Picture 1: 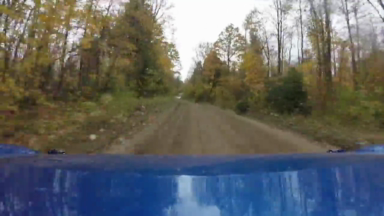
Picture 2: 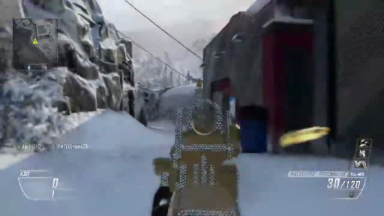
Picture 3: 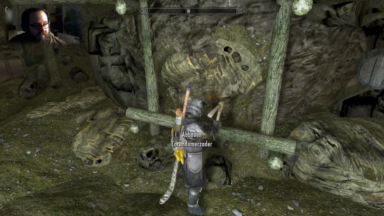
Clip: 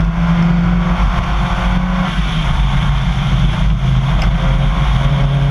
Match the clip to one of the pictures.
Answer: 1